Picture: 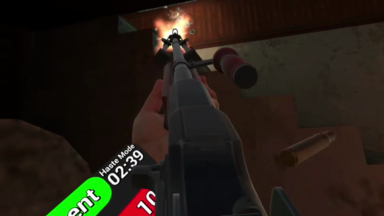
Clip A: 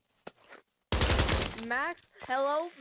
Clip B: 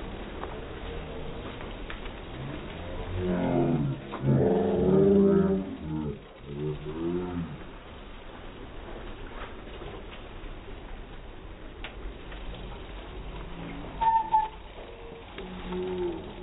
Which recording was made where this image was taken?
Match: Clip A